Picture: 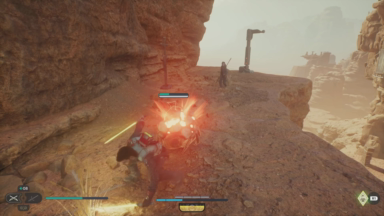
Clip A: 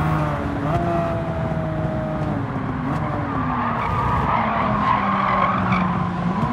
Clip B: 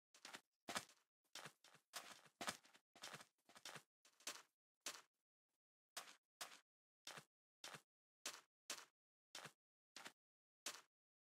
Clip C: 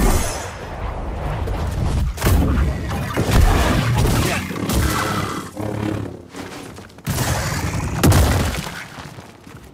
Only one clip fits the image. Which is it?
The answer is C